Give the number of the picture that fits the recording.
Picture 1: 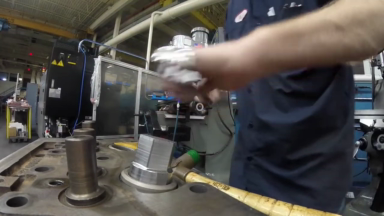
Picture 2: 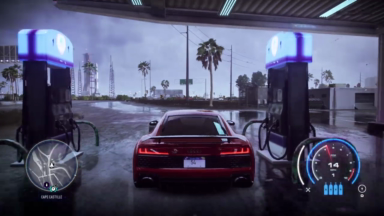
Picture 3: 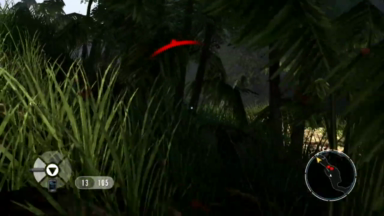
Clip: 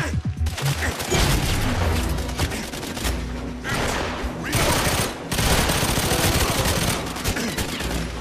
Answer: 3